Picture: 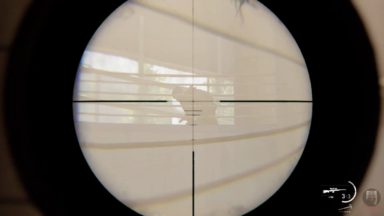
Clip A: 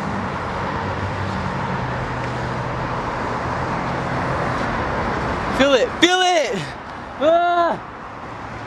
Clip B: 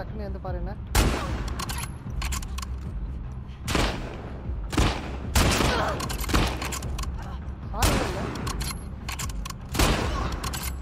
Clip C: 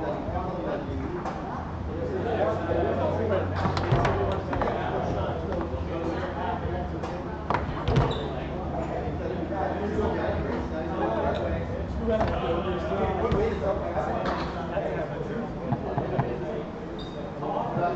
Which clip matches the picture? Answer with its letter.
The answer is B